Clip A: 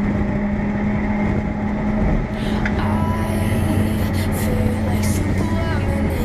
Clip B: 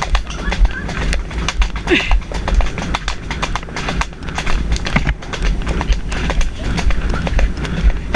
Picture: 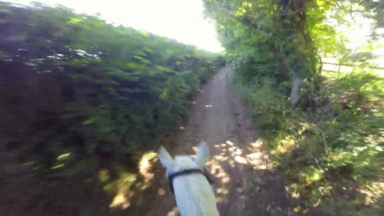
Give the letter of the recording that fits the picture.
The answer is B